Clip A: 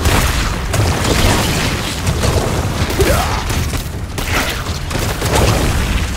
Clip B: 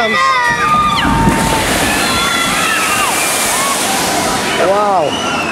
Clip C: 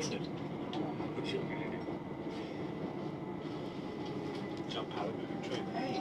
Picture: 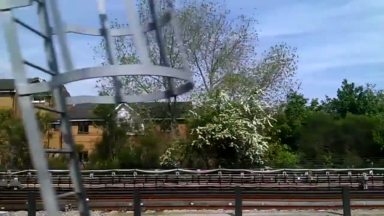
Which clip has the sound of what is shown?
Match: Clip C